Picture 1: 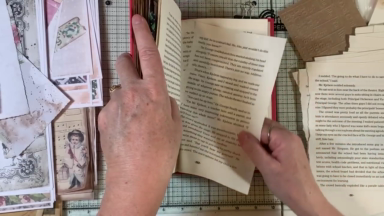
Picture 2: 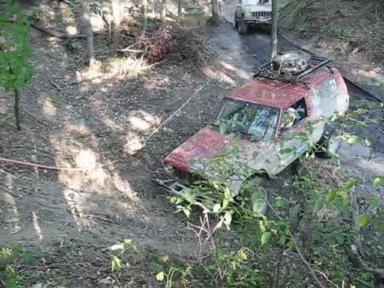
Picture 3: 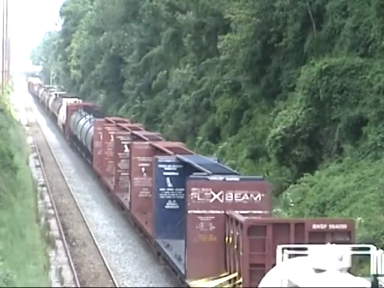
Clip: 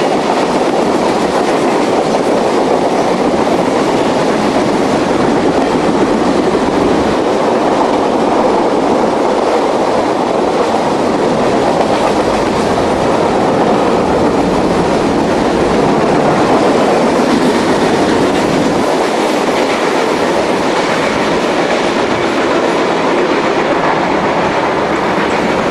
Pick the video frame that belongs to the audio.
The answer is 3